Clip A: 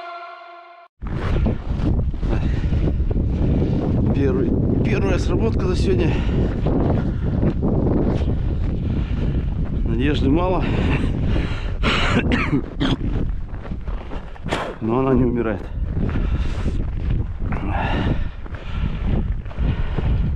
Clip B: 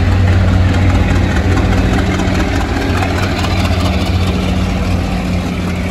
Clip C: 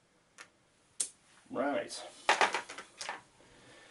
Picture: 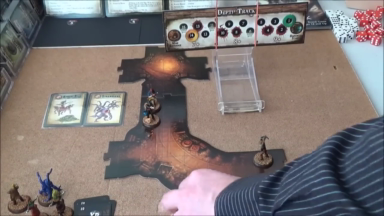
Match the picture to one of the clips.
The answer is C